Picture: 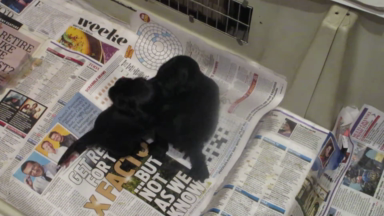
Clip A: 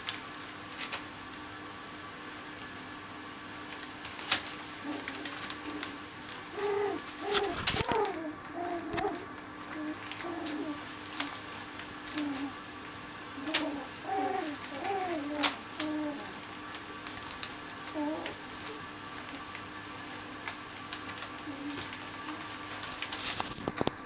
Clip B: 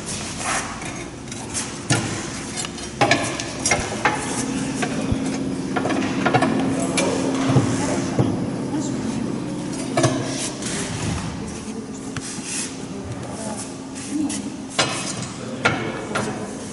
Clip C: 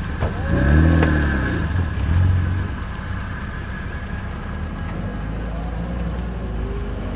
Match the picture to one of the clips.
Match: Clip A